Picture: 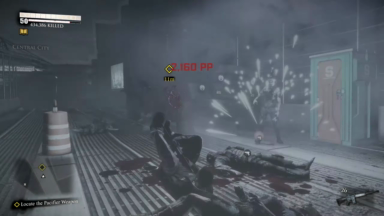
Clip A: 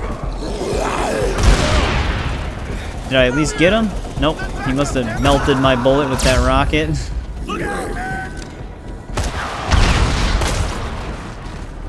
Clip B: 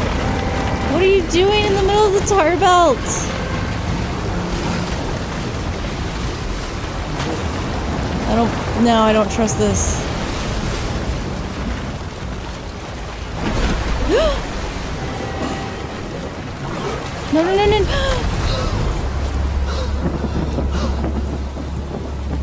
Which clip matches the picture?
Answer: A